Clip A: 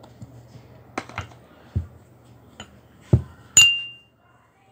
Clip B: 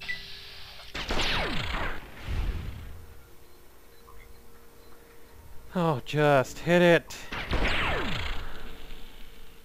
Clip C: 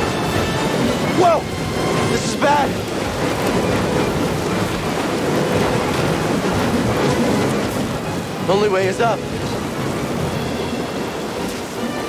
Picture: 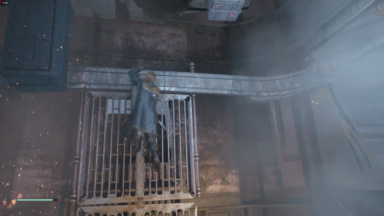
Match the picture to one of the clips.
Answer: C